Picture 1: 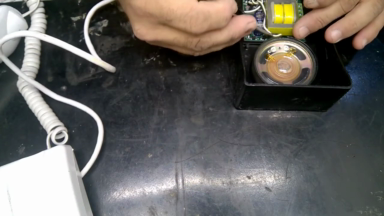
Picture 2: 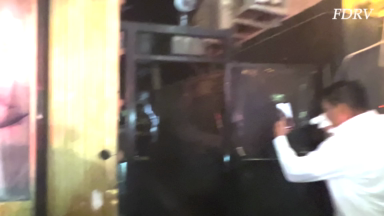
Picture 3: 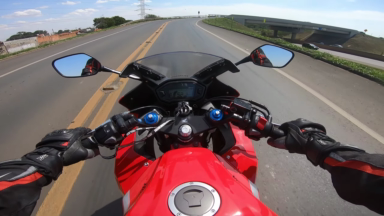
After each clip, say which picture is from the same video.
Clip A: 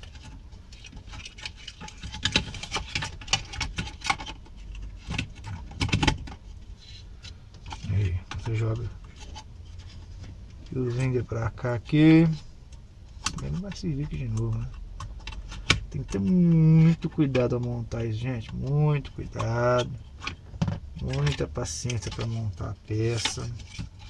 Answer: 1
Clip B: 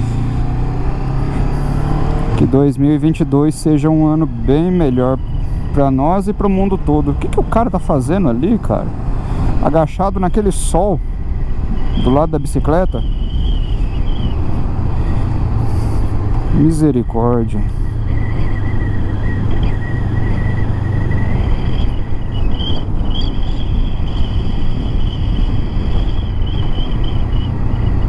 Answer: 3